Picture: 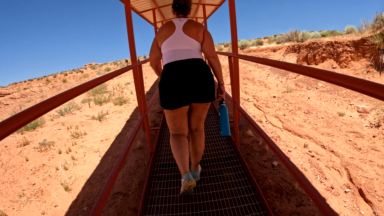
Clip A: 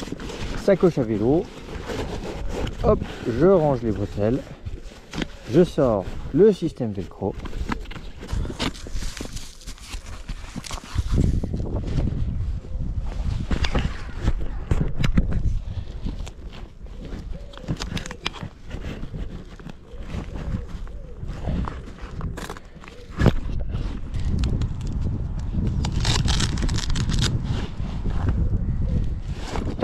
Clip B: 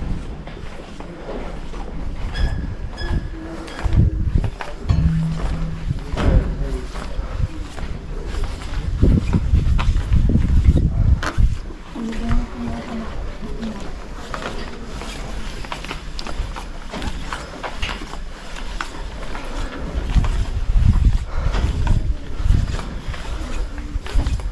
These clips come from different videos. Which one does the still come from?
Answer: B